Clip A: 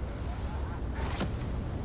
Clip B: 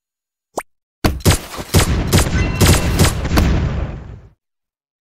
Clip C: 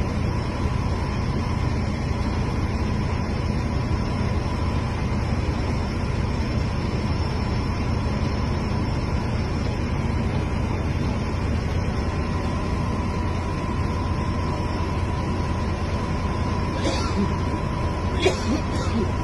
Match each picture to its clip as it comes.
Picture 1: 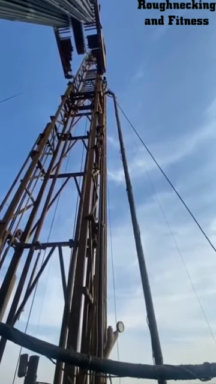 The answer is C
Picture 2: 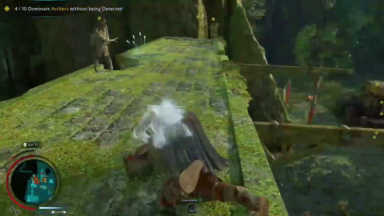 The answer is A